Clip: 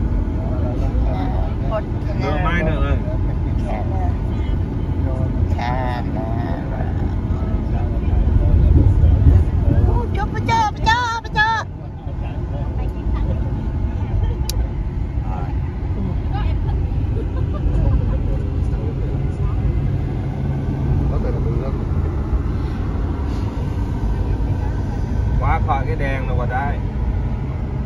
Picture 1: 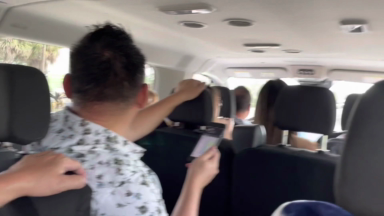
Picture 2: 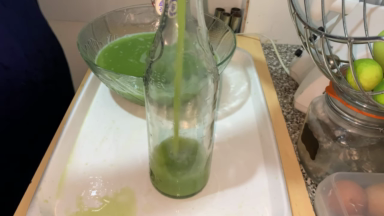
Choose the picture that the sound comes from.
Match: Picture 1